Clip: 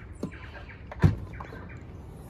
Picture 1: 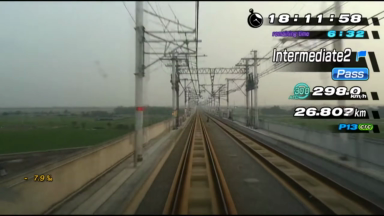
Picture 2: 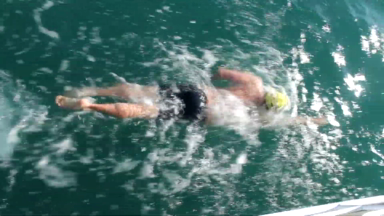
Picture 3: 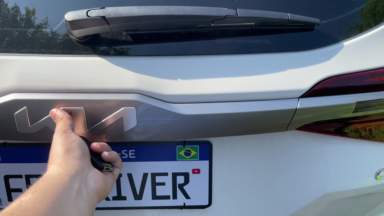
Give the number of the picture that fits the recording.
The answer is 3